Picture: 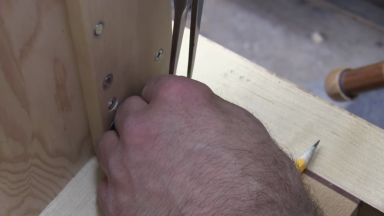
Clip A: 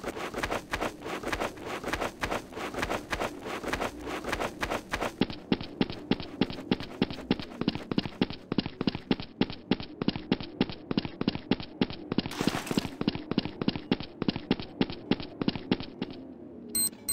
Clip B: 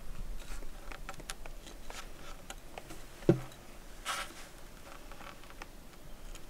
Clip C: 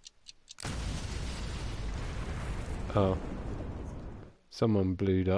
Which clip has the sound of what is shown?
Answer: B